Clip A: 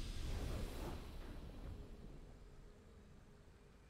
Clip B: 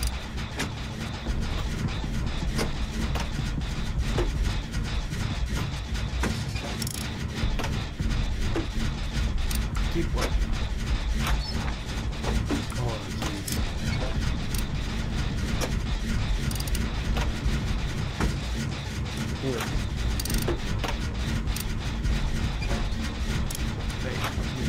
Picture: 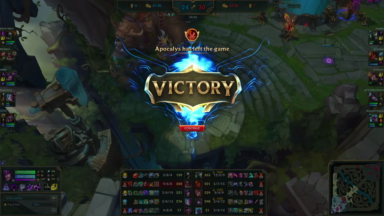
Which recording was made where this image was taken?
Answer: A